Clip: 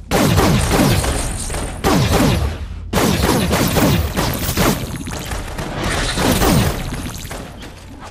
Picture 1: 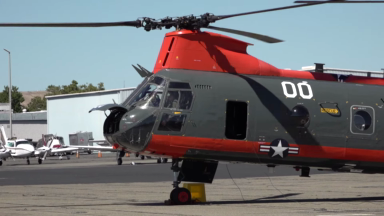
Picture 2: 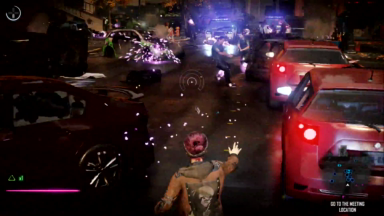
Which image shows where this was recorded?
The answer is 2